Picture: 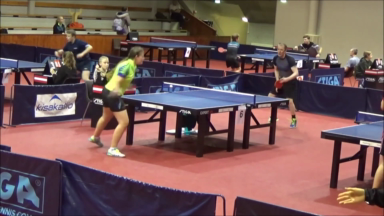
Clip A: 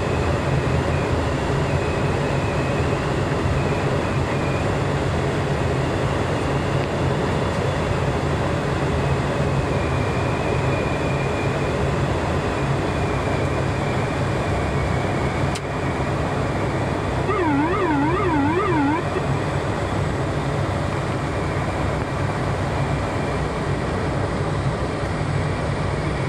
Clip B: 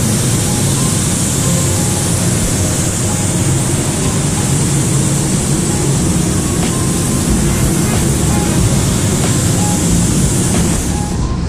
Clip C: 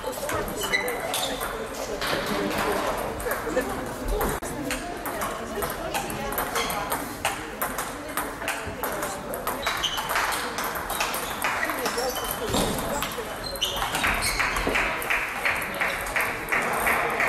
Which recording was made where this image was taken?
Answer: C